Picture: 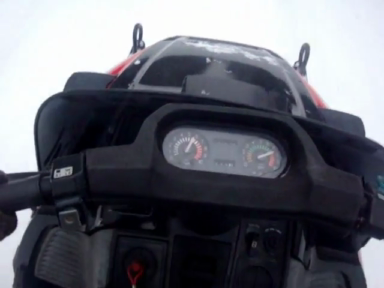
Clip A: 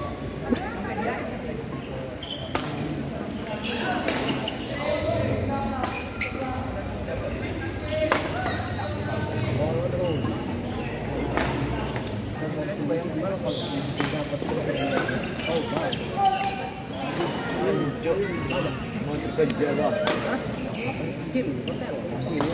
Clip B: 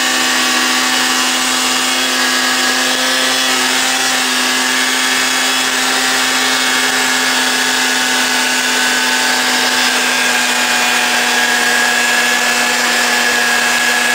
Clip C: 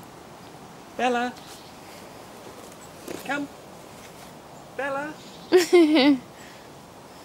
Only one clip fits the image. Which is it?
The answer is B